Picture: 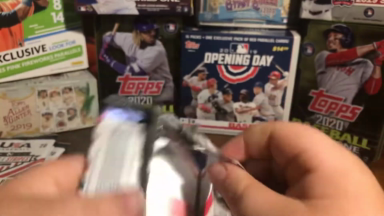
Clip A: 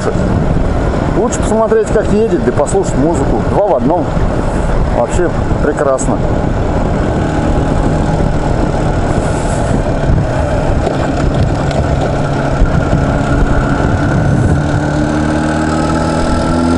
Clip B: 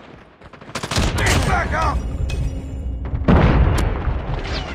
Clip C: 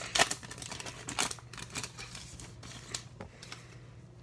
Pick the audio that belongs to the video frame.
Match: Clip C